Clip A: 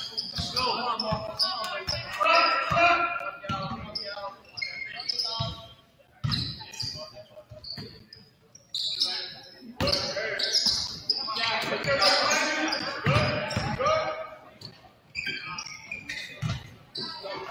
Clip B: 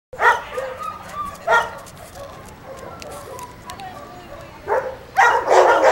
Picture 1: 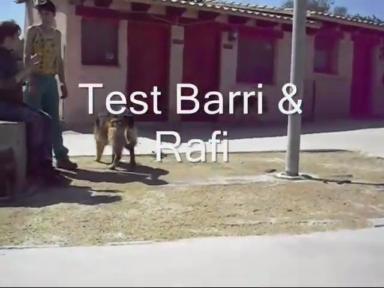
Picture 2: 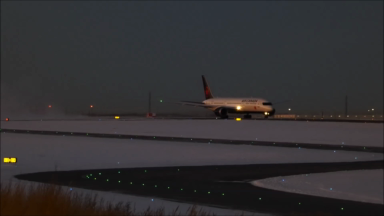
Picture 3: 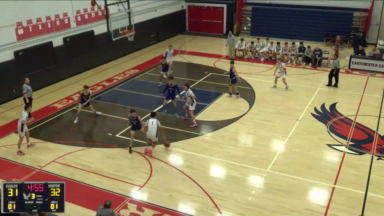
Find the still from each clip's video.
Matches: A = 3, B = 1